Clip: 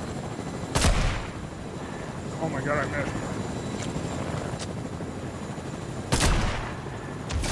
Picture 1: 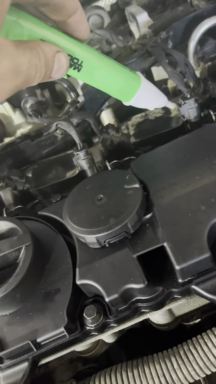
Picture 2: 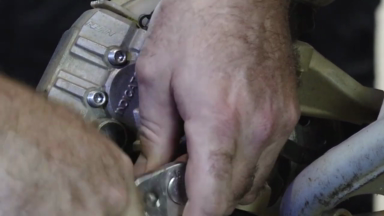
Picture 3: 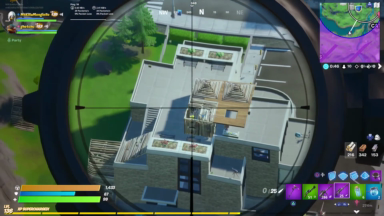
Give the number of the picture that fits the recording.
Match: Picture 3